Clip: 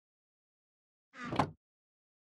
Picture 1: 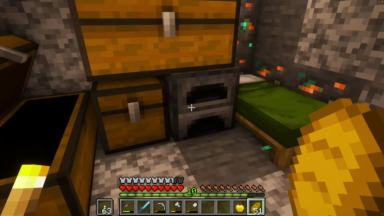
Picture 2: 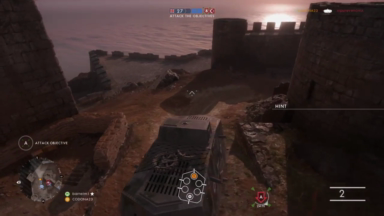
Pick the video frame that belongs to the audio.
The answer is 1